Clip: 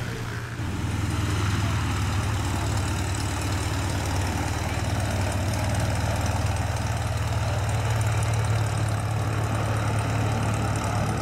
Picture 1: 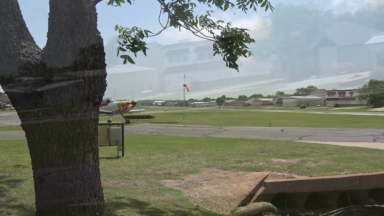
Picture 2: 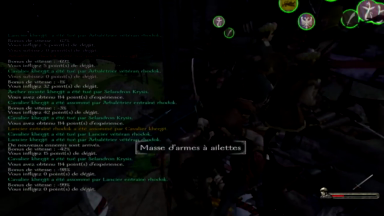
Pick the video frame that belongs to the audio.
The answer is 1